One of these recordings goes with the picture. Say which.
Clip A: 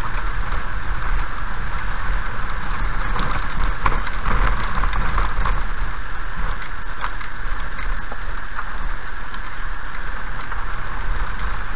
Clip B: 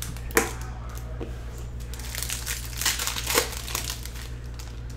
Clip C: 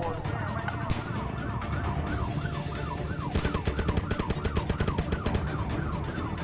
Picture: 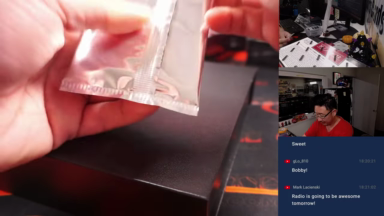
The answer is B